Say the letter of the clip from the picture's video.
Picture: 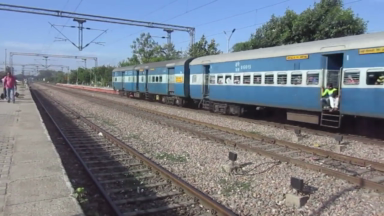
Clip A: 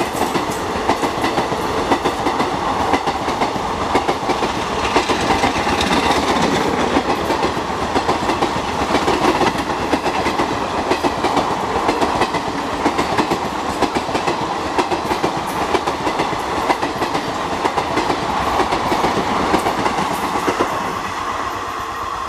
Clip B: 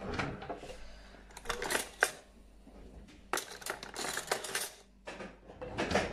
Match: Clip A